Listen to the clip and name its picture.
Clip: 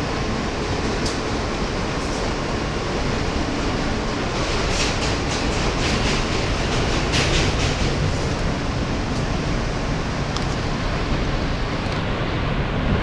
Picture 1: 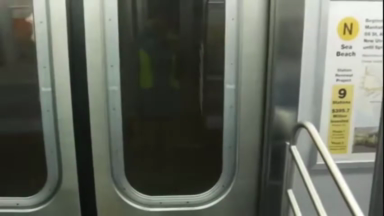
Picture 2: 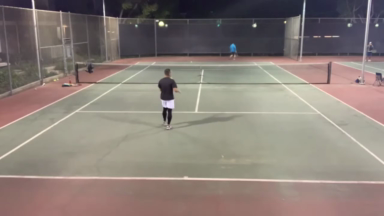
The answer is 1